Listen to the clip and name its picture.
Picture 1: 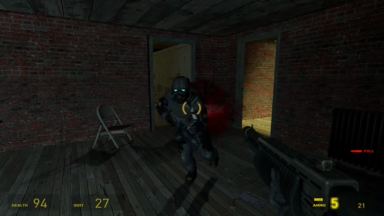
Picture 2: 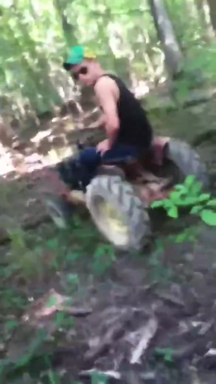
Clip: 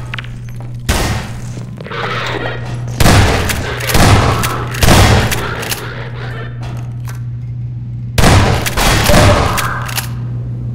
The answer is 1